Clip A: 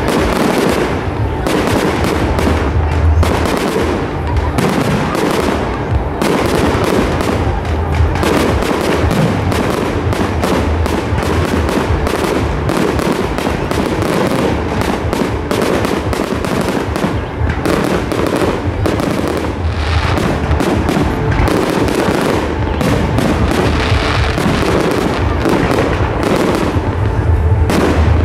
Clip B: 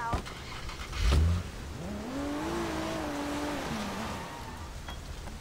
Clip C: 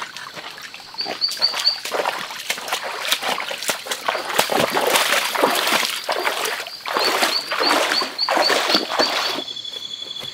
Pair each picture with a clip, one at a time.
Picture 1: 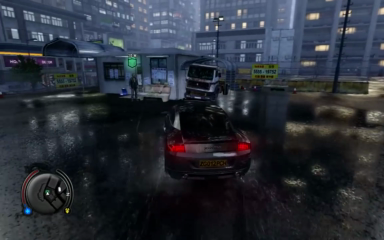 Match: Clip B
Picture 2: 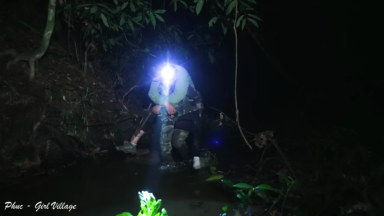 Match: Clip C